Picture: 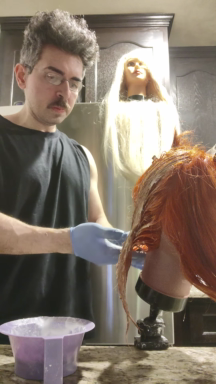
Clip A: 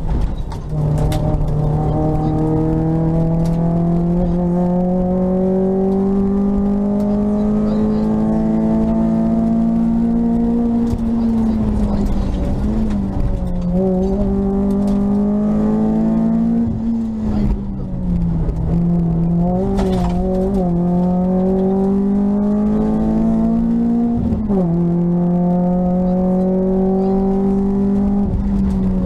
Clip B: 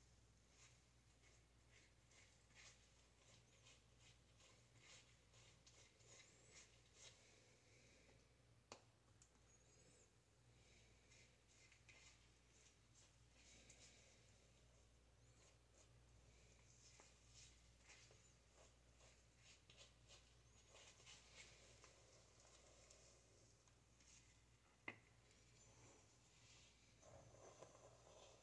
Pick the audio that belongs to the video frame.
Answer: B